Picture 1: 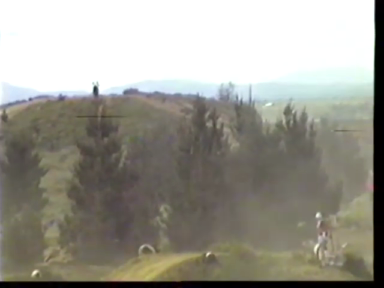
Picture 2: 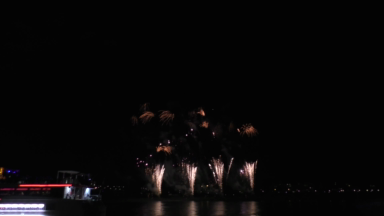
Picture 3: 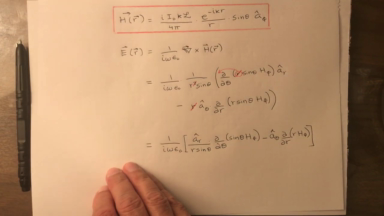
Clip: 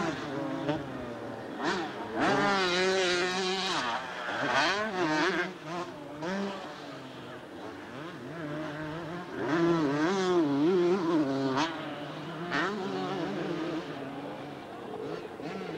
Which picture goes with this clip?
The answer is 1